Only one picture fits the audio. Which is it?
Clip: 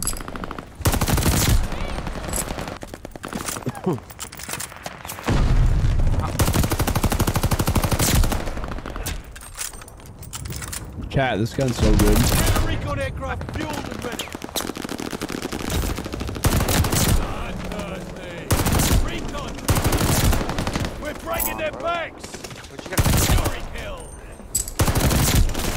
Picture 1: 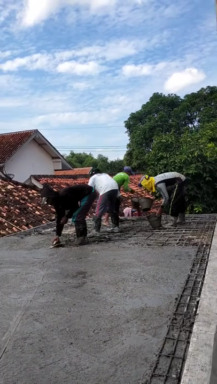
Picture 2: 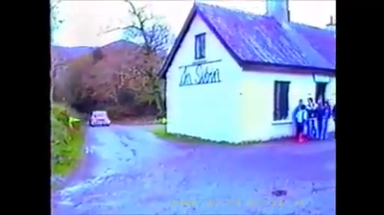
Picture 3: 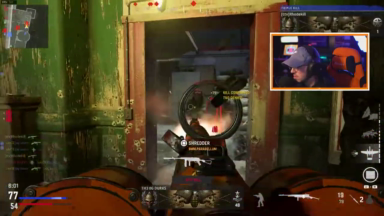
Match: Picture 3